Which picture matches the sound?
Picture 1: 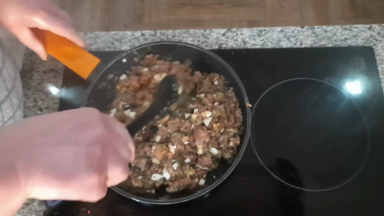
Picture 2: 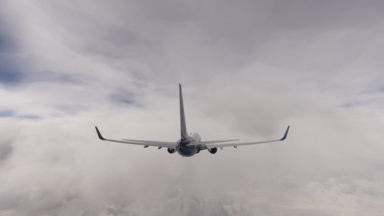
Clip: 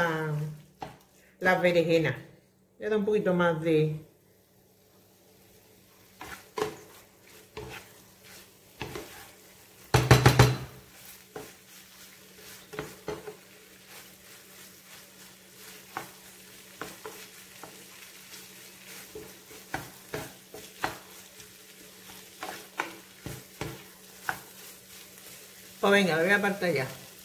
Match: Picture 1